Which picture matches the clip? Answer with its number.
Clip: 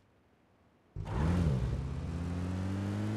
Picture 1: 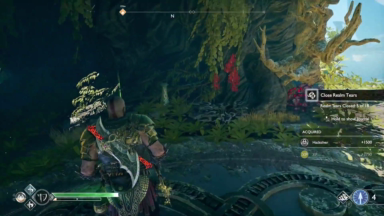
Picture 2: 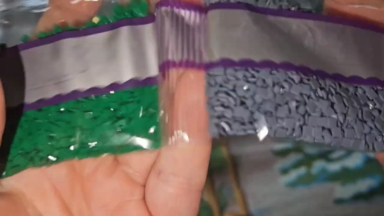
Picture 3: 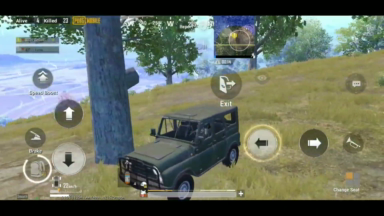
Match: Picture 3